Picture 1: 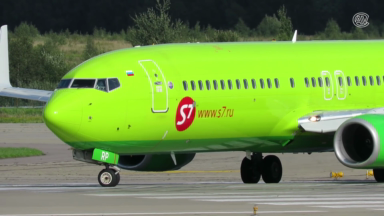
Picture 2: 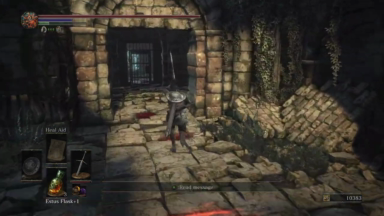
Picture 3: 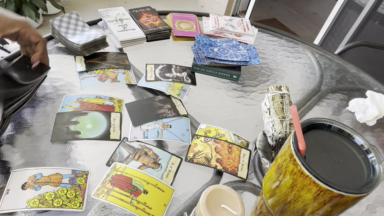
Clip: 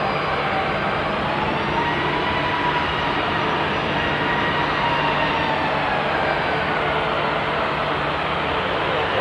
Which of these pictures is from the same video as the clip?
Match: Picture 1